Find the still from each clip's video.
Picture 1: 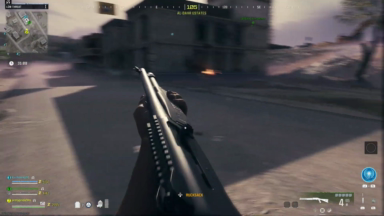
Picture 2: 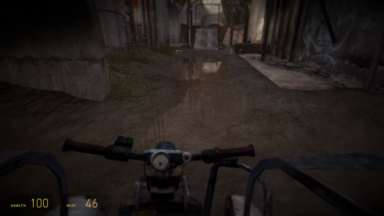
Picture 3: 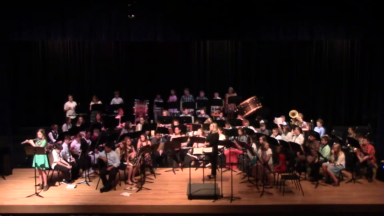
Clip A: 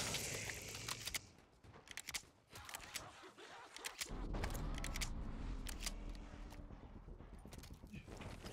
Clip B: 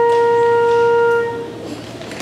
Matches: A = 1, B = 3